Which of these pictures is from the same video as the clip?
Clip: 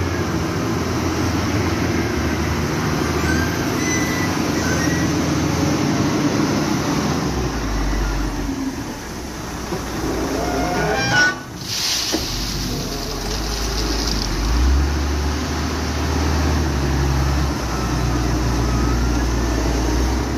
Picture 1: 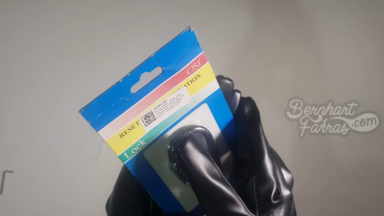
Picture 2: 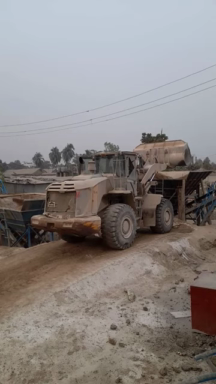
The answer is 2